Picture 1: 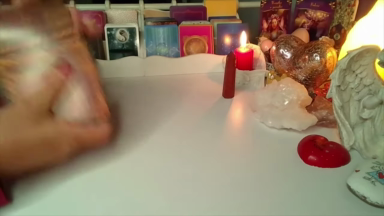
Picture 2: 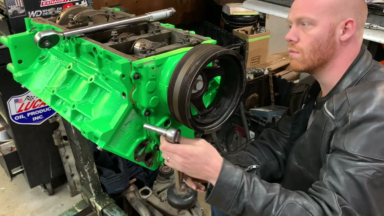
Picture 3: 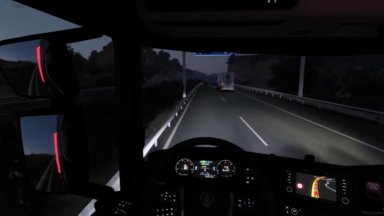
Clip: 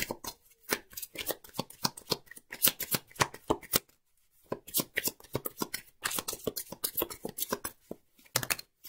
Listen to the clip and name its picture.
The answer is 1